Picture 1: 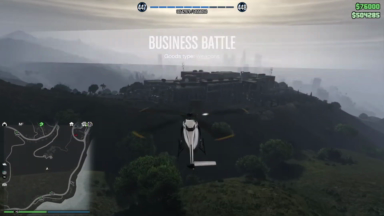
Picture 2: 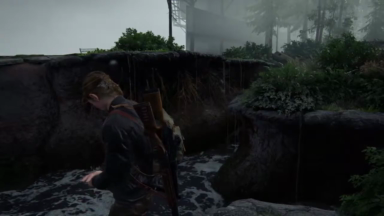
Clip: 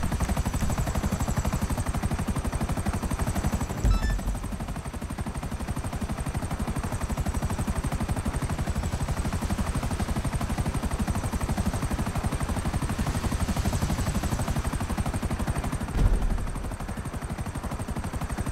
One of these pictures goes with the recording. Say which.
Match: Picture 1